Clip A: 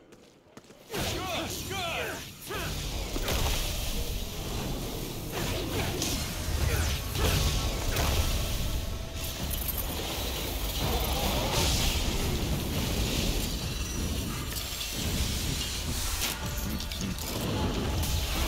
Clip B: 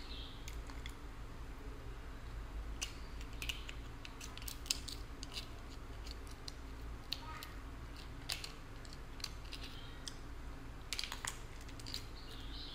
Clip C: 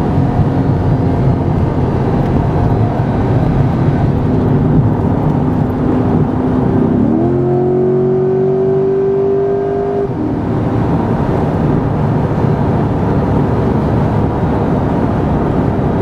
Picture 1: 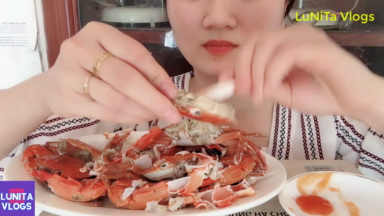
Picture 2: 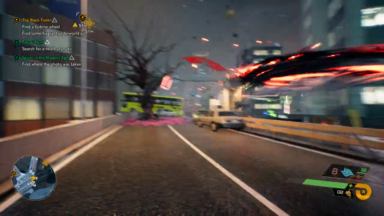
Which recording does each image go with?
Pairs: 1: B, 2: A